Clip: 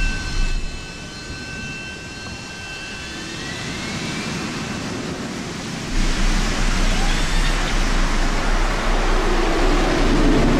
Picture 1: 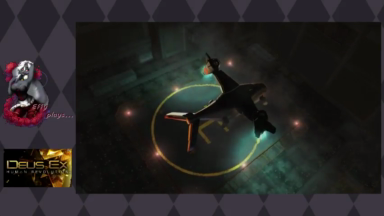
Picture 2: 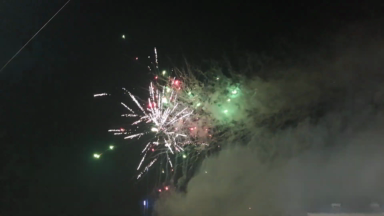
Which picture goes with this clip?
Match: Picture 1